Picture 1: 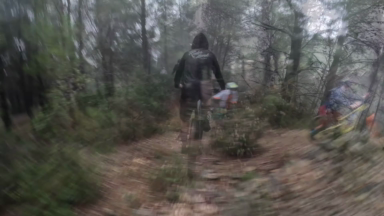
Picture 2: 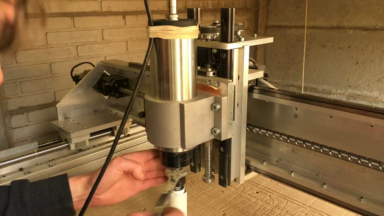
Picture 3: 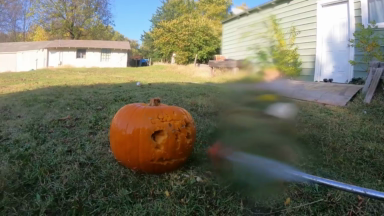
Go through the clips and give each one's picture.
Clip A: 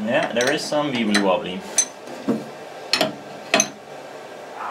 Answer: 2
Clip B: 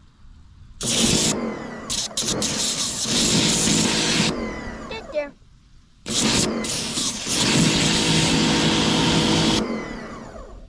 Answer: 3